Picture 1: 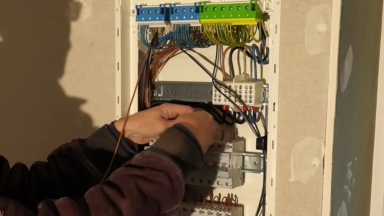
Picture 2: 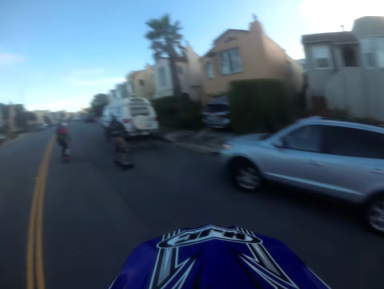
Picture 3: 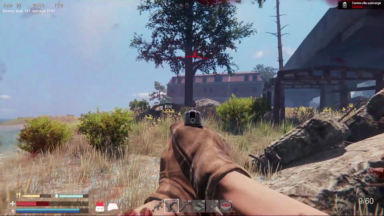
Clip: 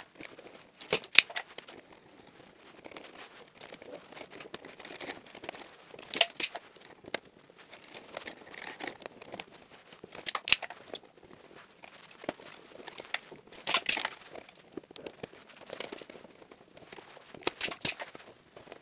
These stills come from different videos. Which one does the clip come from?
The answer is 1